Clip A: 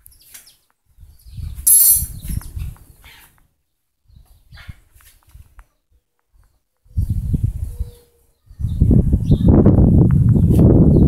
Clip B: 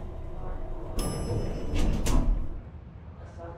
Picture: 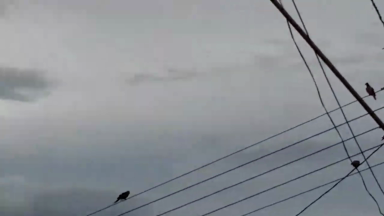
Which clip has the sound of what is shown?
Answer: A